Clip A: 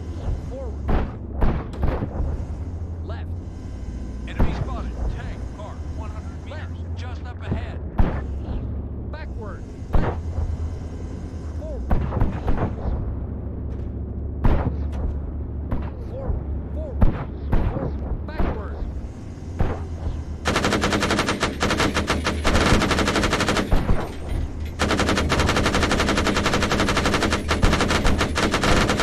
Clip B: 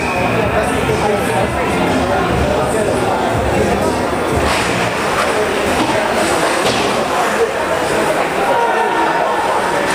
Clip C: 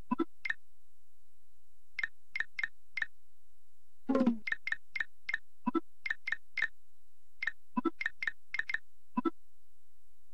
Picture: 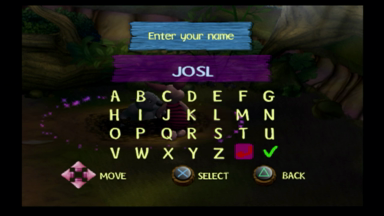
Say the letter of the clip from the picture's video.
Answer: C